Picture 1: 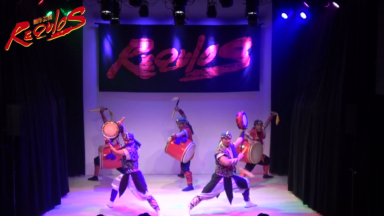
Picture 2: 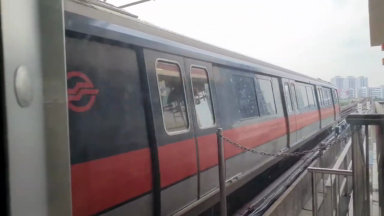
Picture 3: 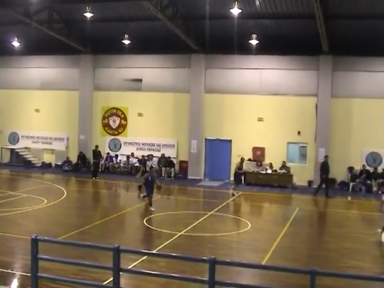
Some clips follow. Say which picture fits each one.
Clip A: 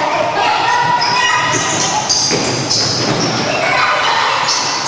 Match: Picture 3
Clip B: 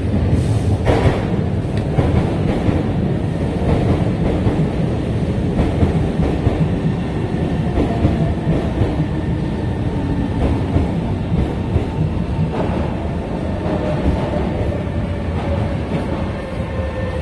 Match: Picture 2